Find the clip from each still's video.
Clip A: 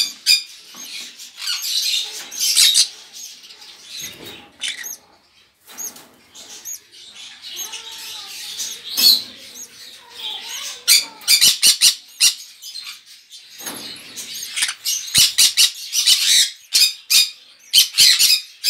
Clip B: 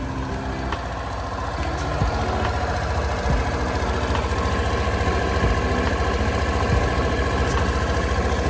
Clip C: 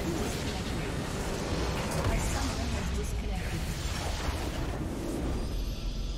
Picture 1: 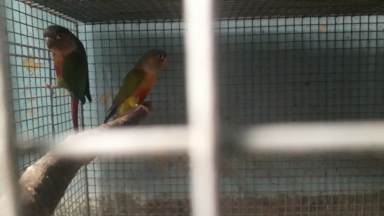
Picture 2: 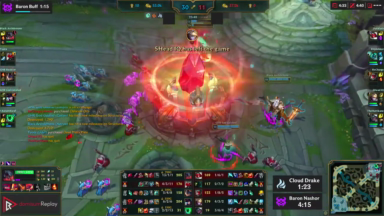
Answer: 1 A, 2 C